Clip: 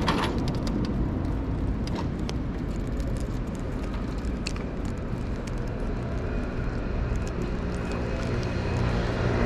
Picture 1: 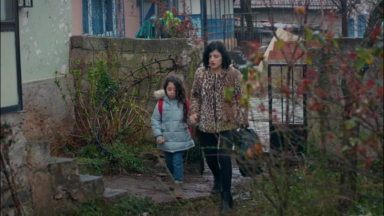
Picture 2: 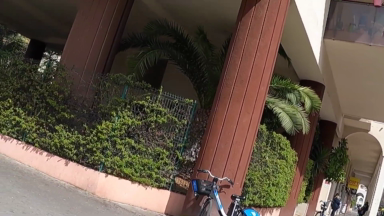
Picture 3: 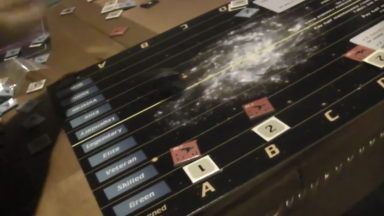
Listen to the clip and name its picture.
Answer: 2